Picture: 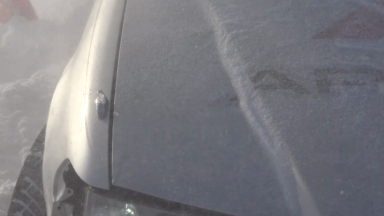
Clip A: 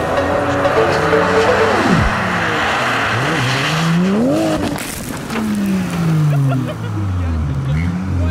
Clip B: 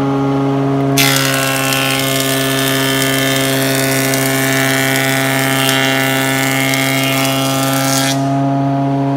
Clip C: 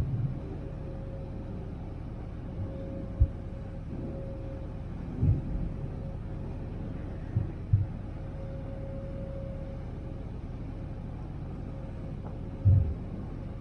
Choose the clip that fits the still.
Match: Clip A